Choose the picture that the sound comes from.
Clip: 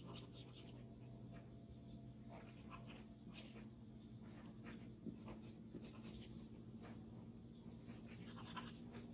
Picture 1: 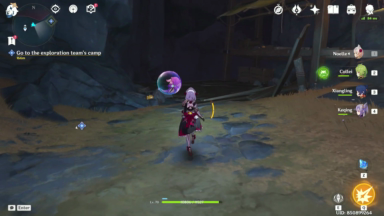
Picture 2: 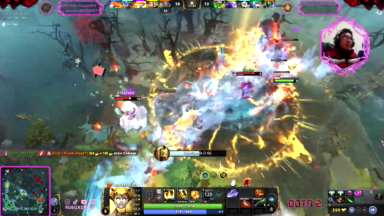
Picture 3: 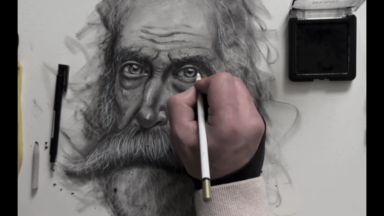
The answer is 3